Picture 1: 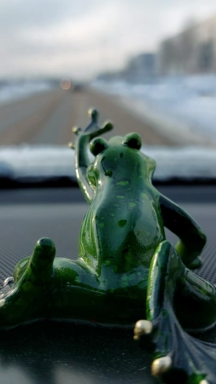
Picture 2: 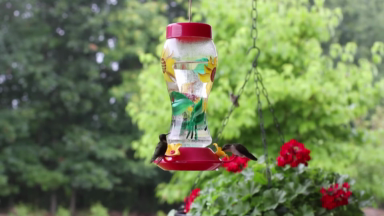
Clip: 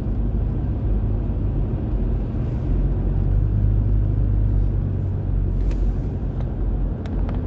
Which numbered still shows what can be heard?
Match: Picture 1